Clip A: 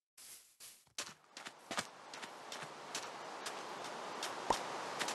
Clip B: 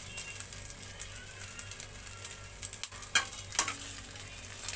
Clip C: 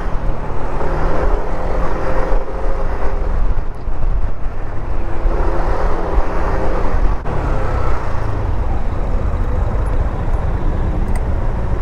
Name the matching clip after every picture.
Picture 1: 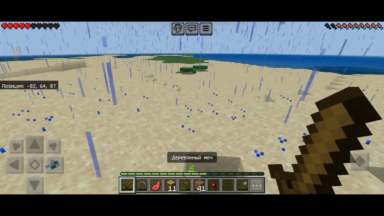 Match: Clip A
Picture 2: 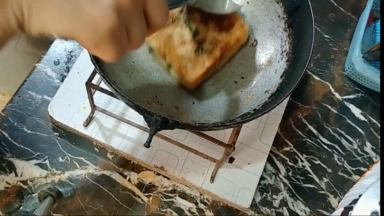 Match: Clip B